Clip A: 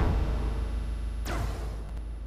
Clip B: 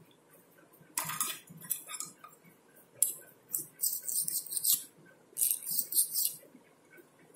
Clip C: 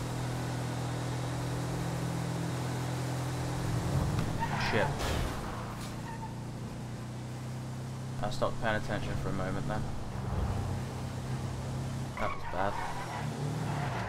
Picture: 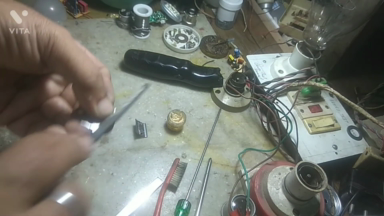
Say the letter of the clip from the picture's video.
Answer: B